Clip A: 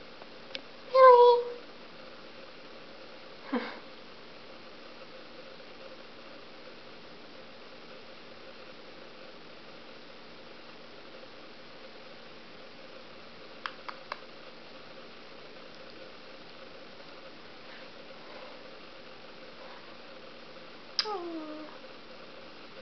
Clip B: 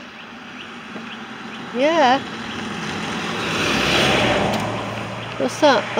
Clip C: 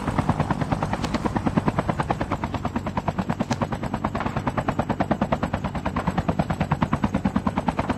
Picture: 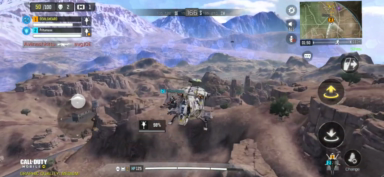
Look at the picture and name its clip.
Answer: C